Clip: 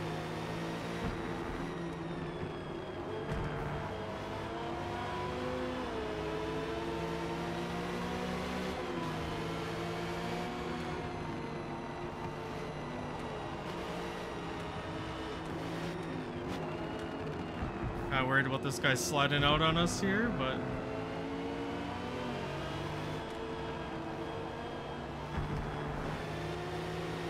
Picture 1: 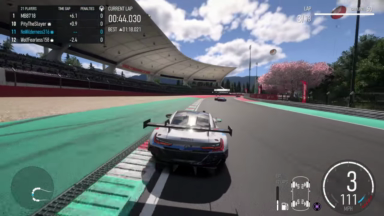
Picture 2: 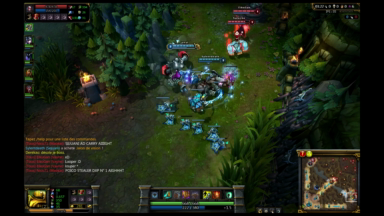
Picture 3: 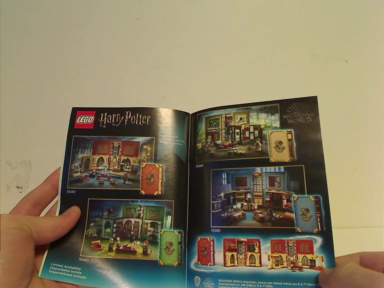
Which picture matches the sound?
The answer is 1